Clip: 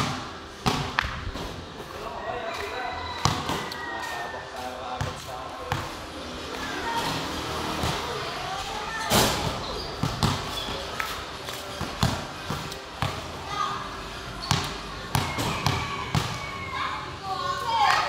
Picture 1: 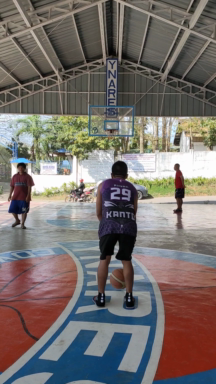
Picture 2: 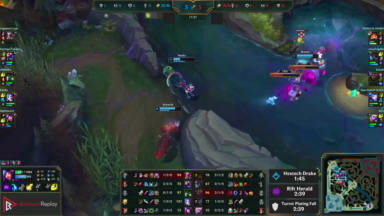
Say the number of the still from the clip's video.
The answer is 1